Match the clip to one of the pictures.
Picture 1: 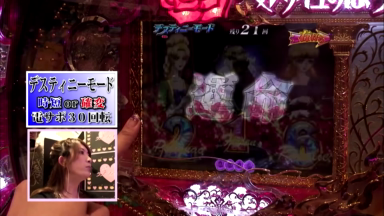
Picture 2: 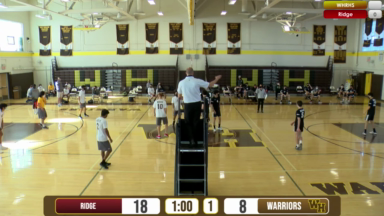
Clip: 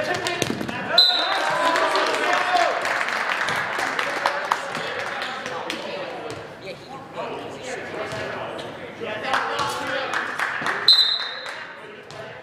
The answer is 2